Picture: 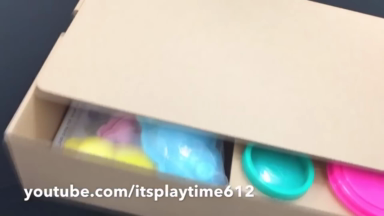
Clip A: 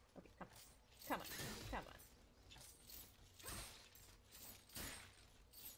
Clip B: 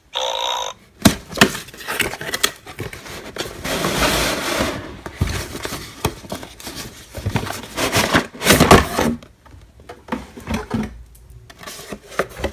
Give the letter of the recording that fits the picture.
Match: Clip B